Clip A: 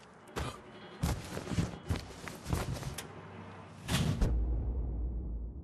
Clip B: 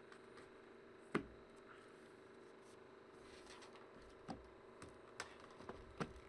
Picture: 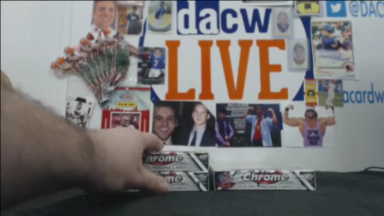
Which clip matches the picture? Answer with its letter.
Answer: B